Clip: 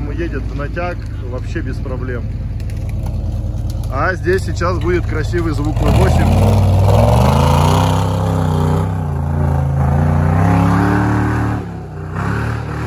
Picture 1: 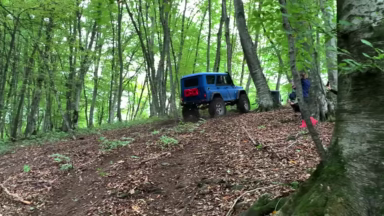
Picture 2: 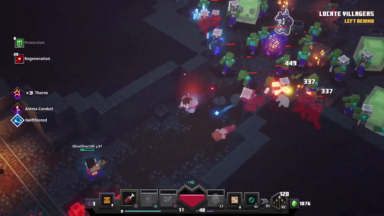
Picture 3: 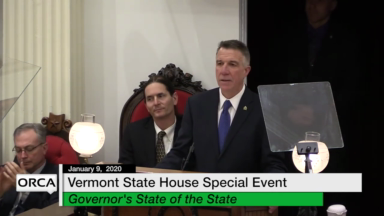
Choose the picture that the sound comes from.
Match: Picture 1